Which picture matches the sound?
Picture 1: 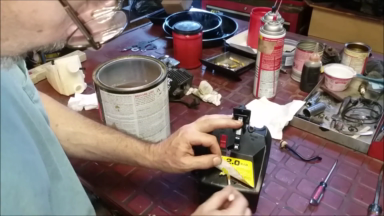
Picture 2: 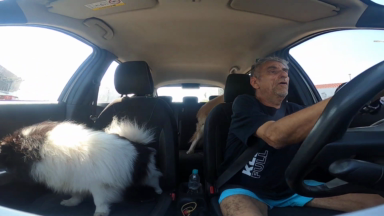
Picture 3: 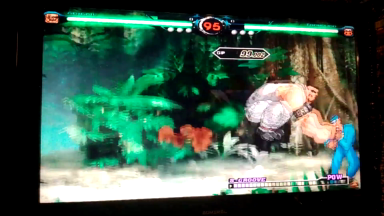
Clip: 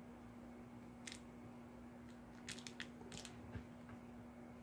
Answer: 1